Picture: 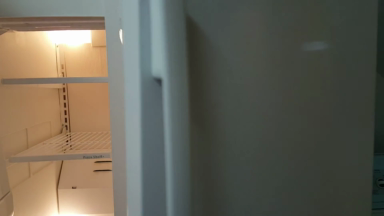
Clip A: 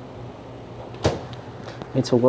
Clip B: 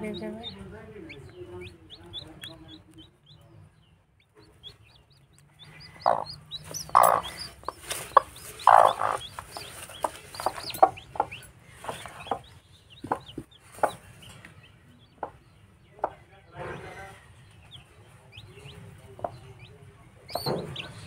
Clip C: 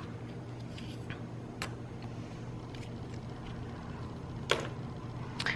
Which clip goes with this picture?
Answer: A